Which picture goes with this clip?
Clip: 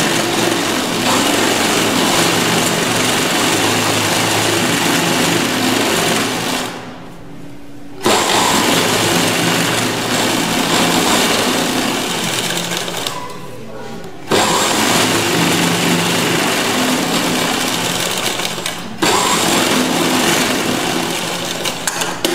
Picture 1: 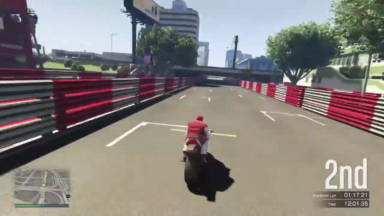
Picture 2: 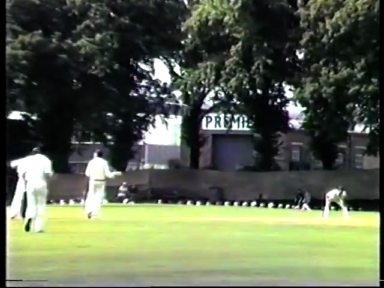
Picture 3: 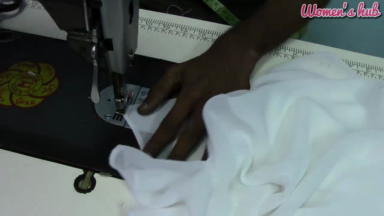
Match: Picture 3